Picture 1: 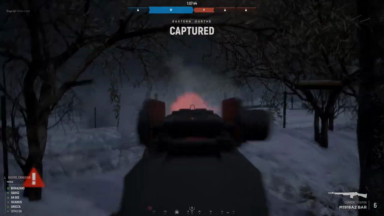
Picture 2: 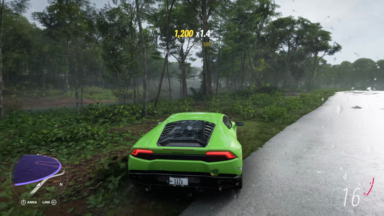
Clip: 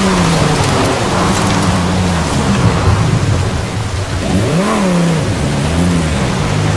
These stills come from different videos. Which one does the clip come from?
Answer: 2